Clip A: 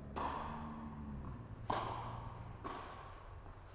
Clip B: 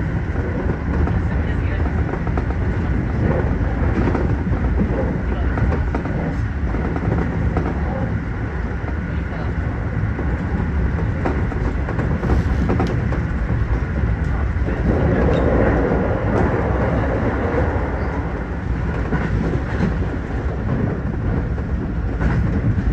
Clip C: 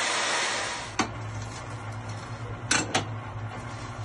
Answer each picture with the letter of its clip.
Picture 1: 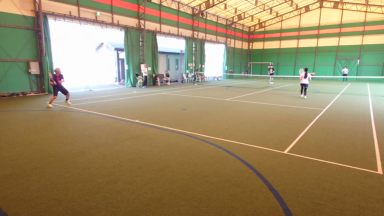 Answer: A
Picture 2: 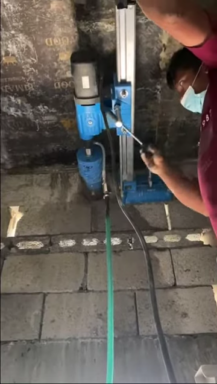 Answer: C